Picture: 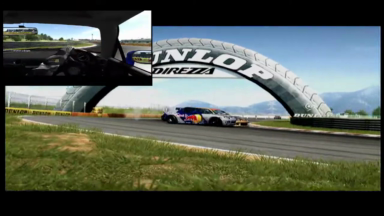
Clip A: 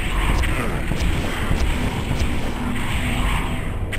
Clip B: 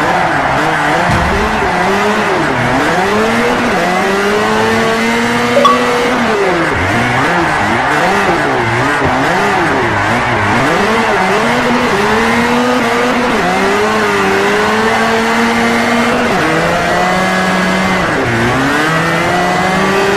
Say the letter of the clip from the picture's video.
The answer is B